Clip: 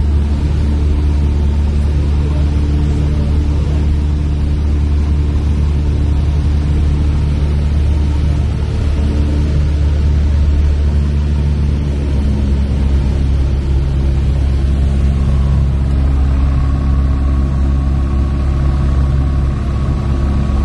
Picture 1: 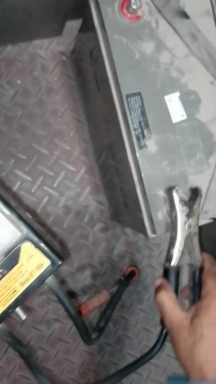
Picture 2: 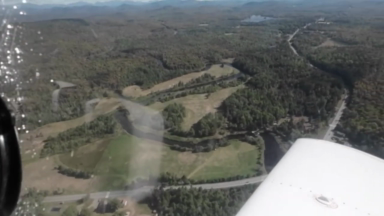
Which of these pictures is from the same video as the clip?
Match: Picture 2